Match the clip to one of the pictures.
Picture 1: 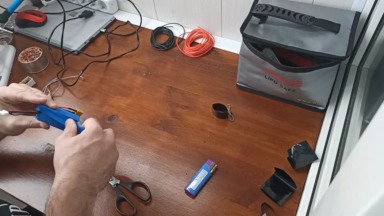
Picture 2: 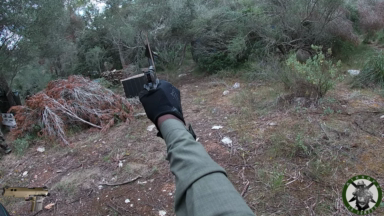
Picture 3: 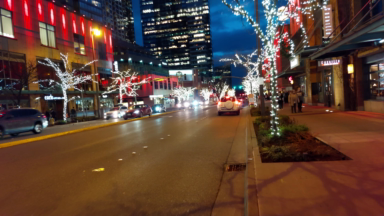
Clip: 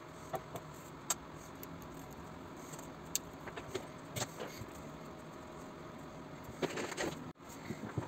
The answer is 1